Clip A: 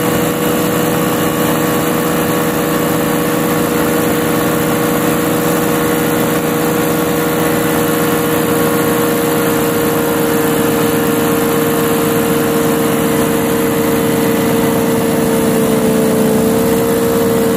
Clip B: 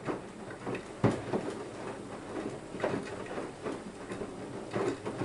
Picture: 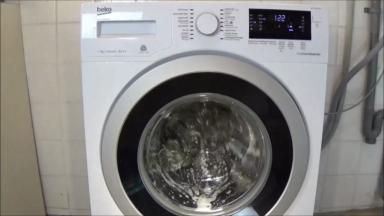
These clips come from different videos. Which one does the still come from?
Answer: B